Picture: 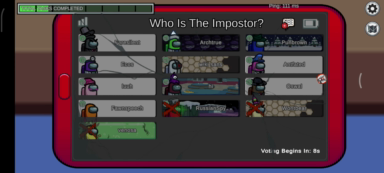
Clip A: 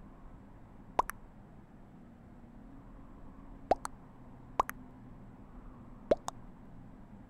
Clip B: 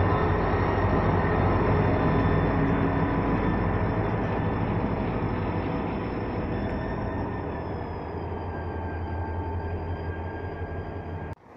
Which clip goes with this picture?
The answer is A